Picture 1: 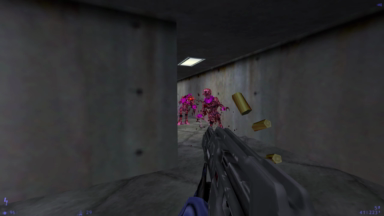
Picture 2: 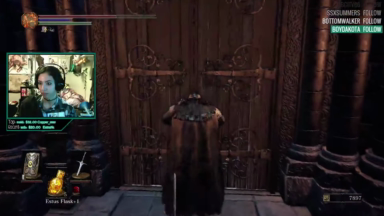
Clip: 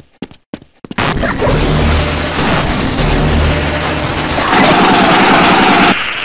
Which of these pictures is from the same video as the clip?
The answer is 1